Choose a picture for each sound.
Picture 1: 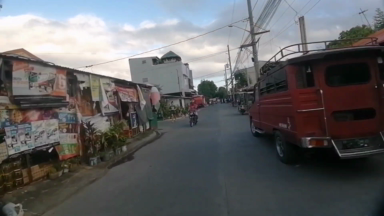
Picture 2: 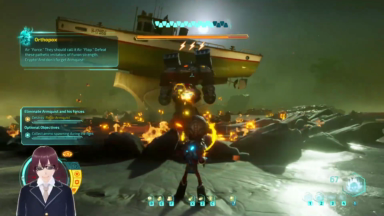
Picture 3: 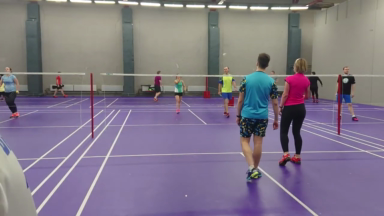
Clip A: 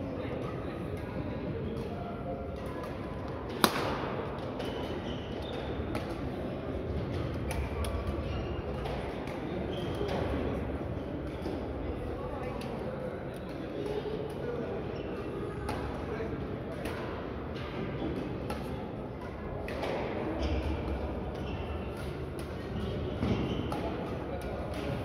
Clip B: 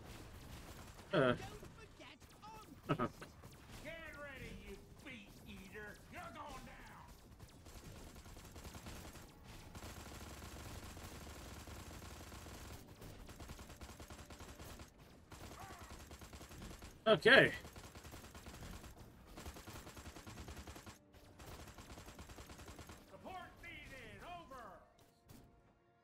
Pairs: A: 3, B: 2